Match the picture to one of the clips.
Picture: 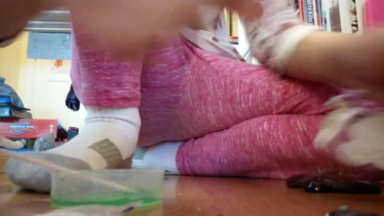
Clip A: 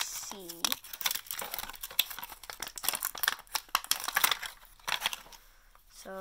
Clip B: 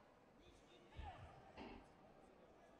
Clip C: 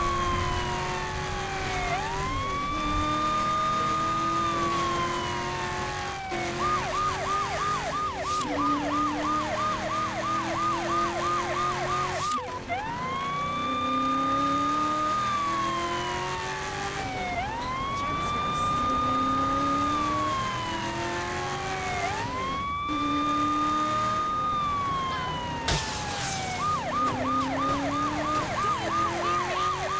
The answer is A